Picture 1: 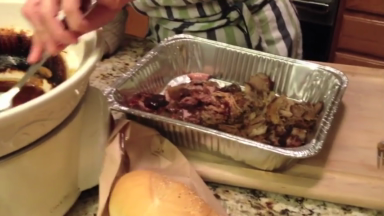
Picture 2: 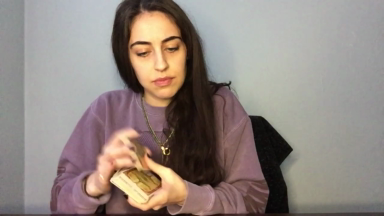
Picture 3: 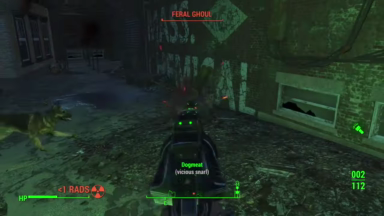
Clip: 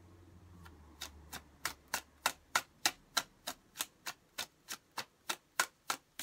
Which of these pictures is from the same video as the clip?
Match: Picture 2